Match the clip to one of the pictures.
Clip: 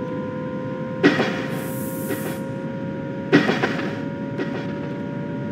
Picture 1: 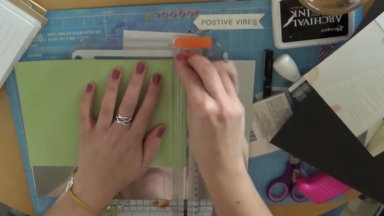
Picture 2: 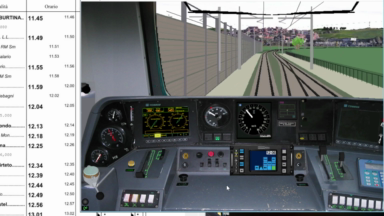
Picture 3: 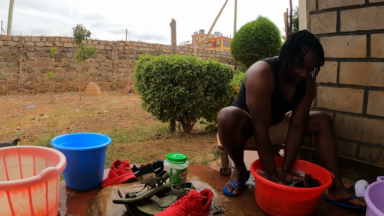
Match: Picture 2